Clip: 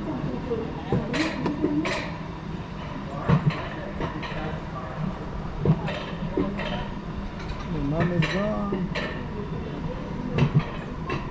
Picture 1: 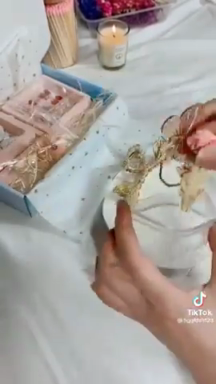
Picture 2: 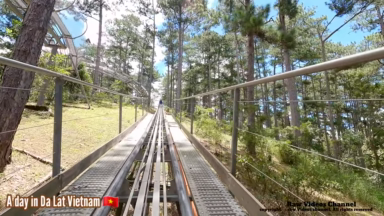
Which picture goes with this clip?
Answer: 2